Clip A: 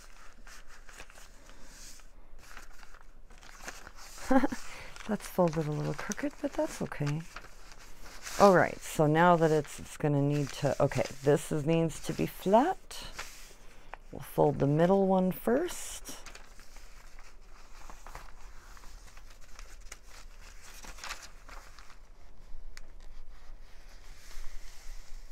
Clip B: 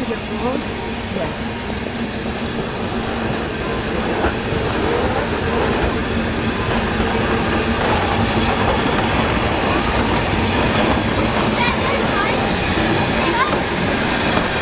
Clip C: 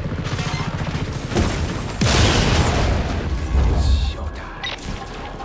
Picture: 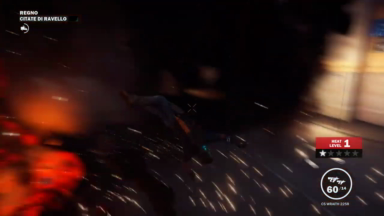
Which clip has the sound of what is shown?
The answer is C